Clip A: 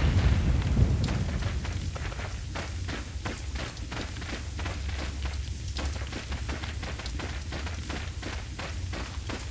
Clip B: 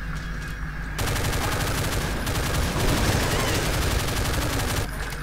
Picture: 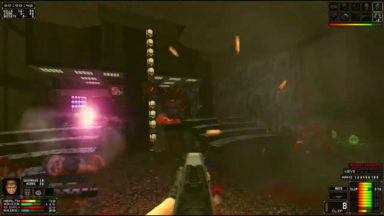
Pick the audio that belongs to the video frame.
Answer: B